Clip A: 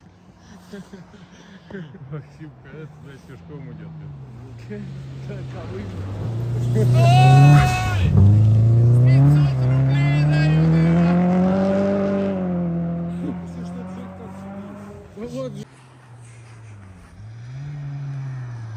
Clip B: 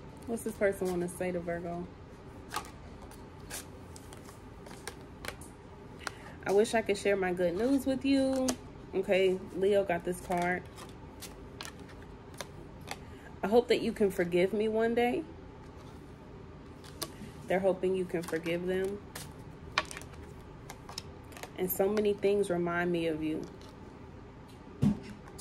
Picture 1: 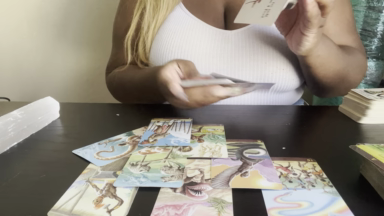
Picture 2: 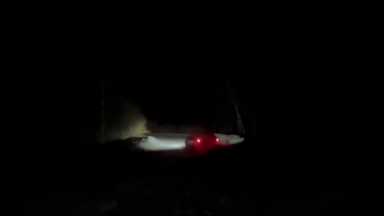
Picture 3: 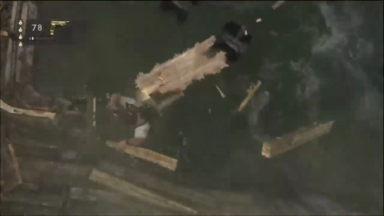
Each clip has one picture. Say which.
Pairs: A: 2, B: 1